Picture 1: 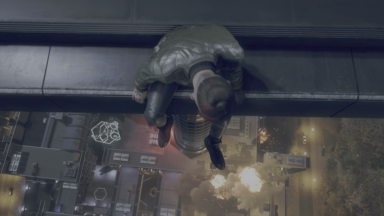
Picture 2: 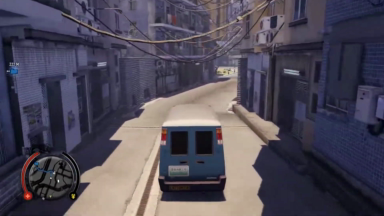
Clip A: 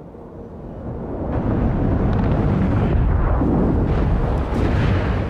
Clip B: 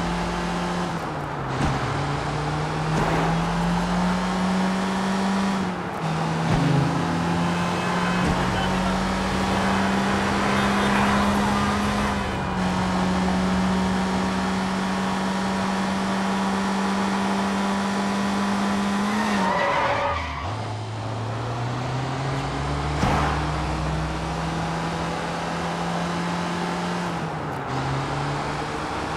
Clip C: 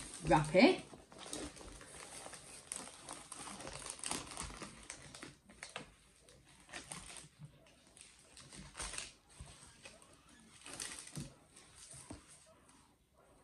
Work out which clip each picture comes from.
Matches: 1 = A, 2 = B